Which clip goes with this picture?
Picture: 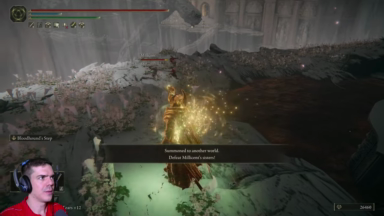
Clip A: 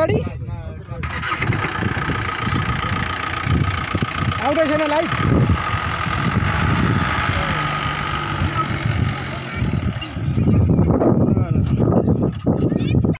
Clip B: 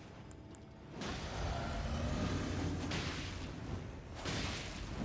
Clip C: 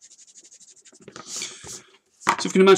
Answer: B